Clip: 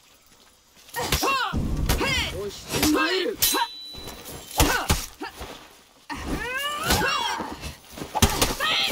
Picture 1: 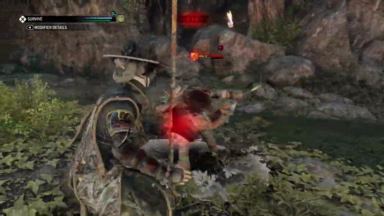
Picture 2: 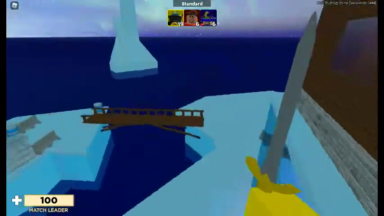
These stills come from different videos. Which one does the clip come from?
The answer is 1